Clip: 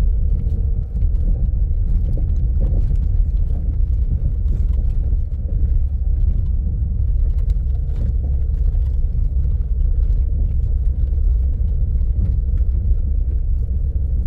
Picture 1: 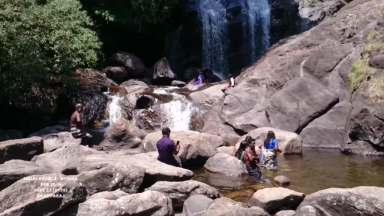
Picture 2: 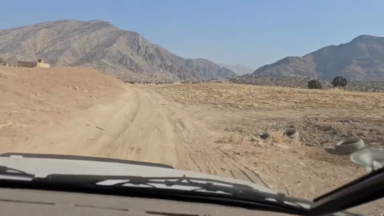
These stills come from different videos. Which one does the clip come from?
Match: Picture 2